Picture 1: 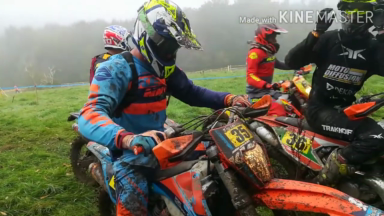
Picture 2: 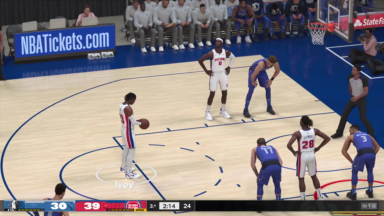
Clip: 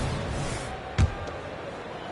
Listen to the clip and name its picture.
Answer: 2